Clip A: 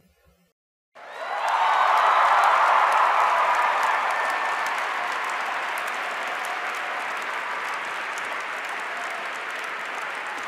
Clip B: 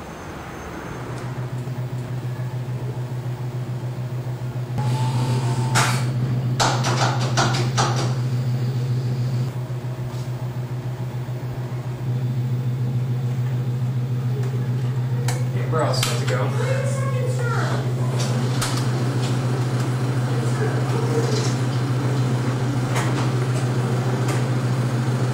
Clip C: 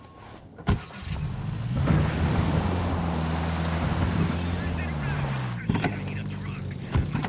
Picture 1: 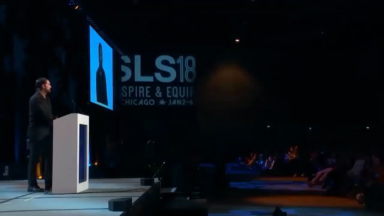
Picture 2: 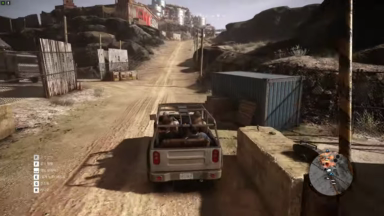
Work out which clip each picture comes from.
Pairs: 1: A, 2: C